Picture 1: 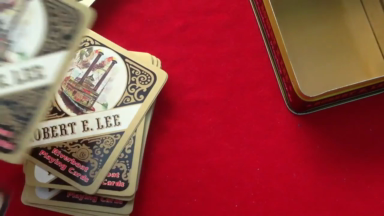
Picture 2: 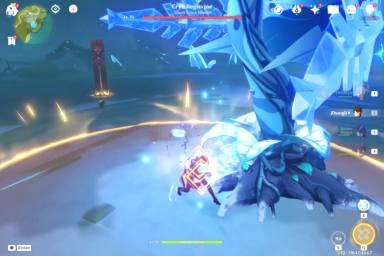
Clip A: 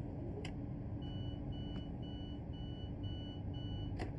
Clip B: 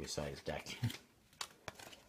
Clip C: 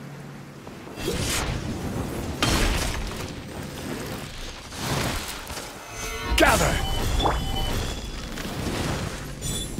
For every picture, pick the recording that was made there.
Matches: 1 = B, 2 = C